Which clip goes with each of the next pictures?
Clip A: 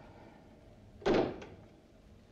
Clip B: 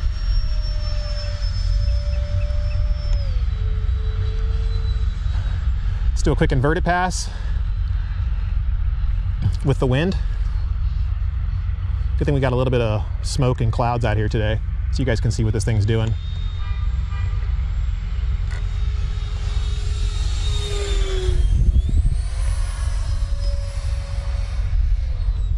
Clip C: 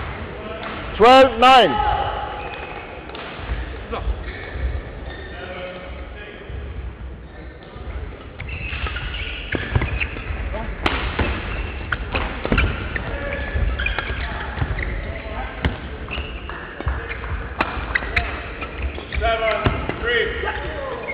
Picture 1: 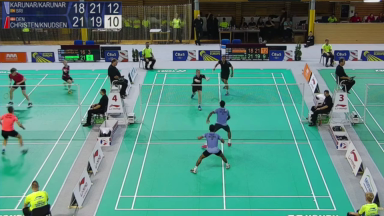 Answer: C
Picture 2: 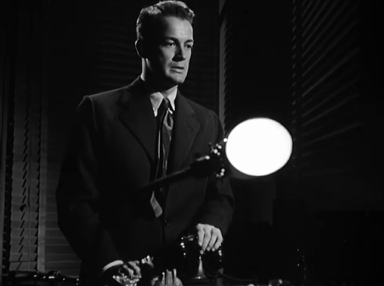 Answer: A